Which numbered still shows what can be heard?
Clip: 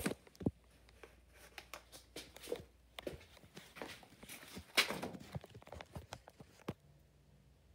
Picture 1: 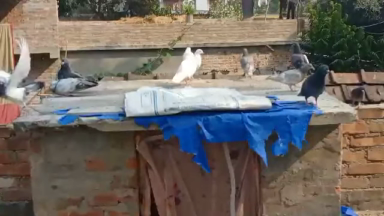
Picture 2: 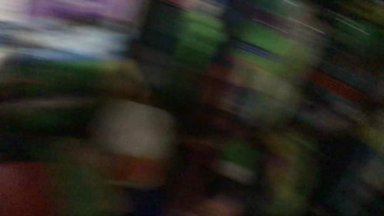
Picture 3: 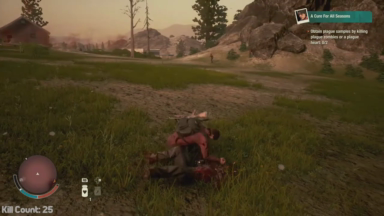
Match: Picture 2